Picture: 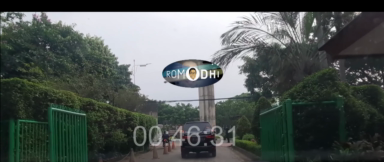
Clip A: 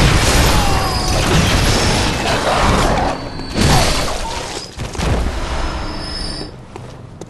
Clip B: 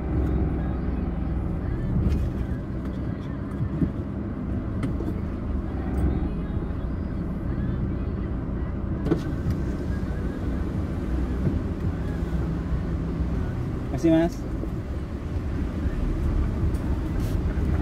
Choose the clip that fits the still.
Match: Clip B